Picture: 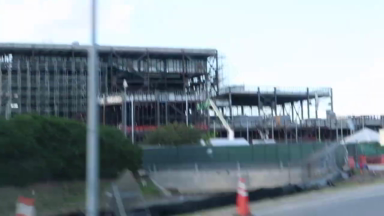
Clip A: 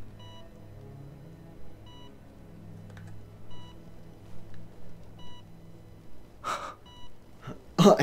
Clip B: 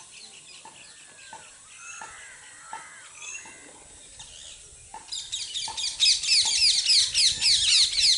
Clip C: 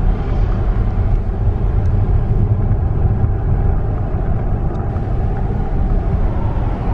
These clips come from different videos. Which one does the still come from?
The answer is C